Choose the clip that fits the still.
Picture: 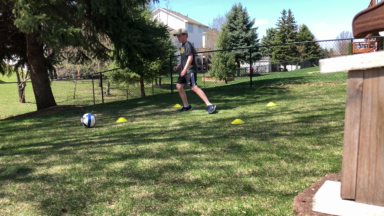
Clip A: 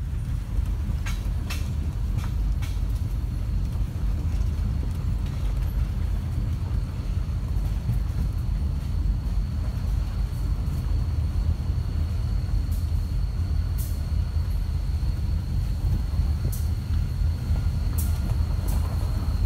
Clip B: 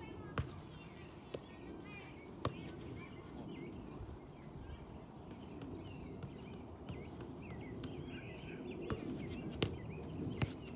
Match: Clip B